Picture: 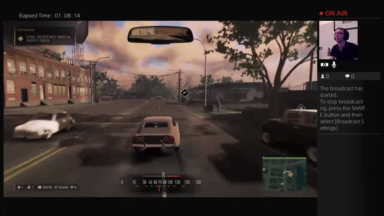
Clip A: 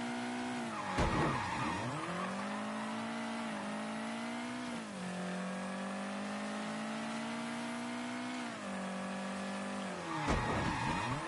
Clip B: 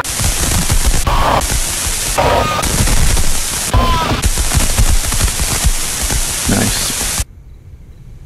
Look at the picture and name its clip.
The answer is A